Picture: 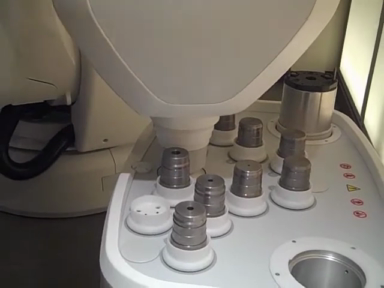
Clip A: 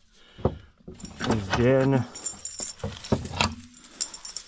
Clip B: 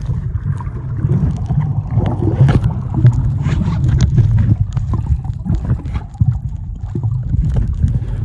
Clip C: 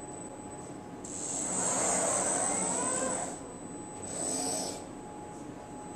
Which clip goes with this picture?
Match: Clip C